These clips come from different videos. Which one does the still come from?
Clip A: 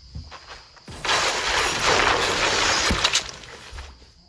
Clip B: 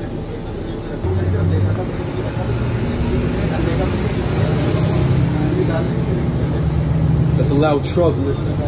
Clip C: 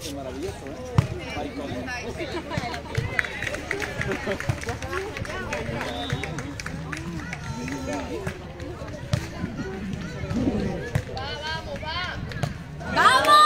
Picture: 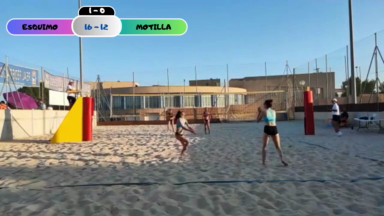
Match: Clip C